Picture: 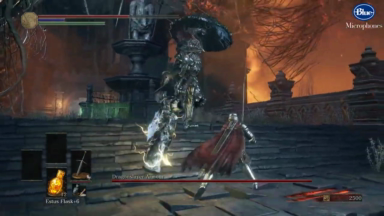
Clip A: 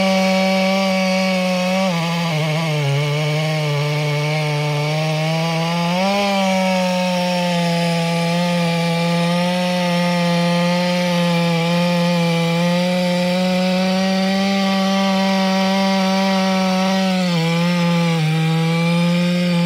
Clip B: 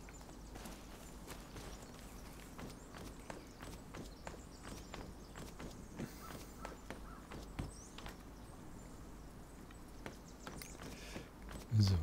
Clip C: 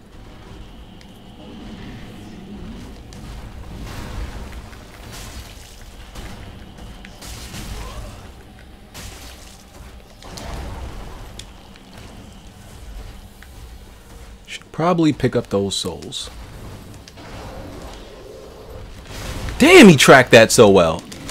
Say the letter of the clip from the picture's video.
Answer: C